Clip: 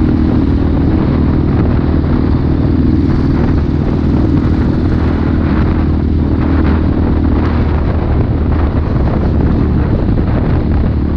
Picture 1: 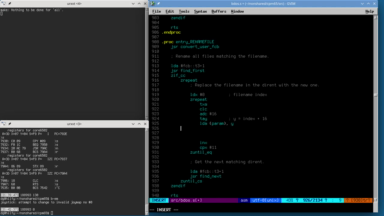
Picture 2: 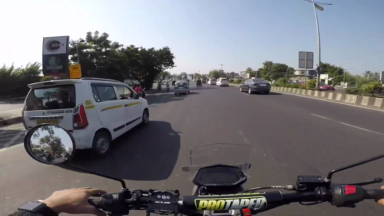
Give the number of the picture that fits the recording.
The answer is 2